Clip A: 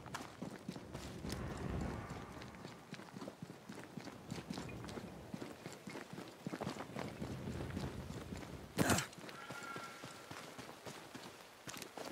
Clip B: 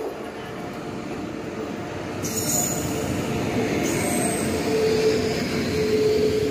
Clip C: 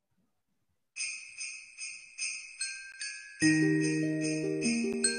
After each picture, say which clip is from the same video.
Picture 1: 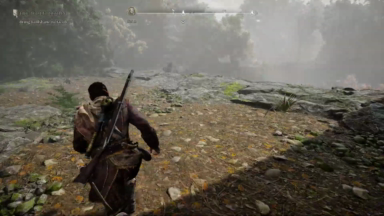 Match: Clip A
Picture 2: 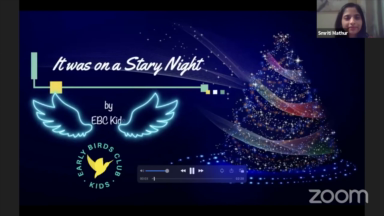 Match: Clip C